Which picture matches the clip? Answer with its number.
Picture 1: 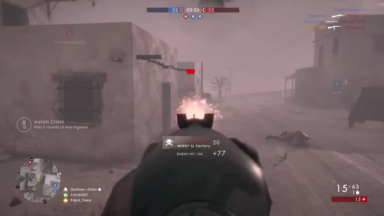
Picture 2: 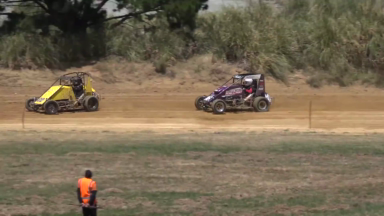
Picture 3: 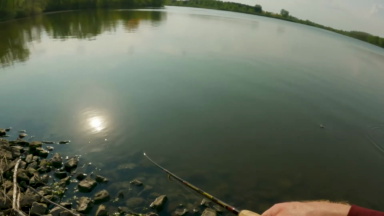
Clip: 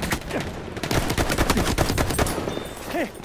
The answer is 1